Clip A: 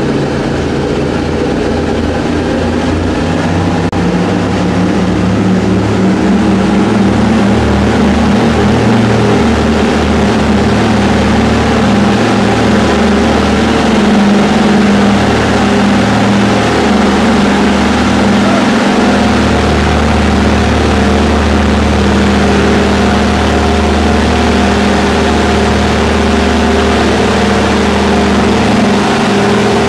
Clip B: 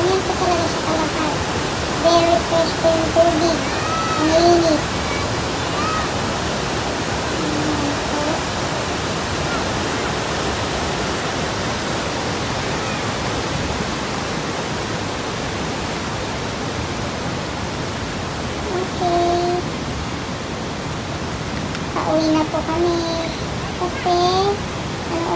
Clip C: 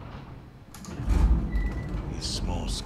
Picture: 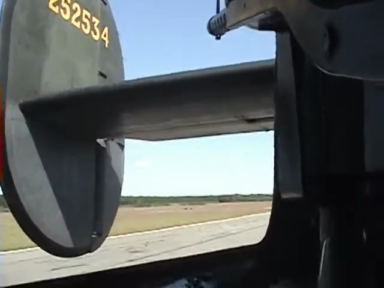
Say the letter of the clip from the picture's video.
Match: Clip A